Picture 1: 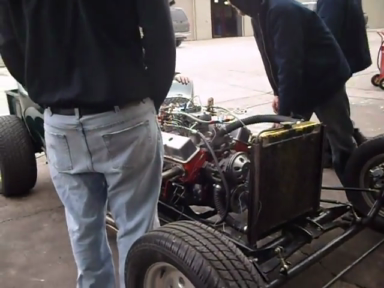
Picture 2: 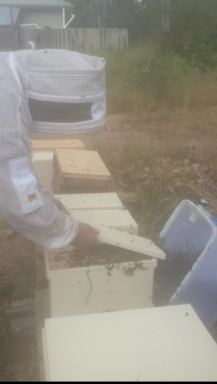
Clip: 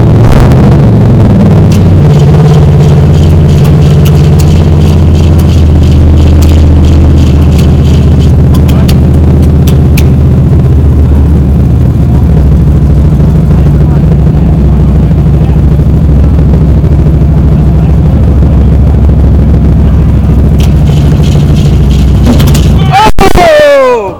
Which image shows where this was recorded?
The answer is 1